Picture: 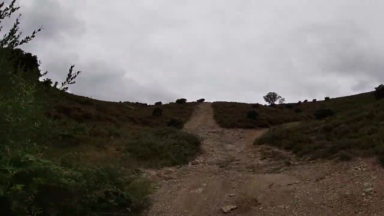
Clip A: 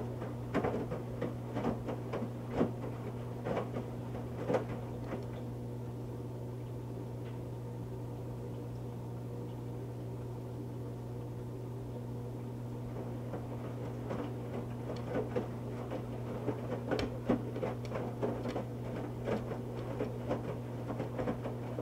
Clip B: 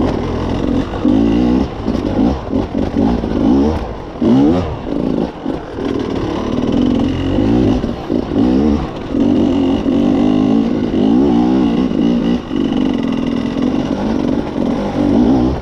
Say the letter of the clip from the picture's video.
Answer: B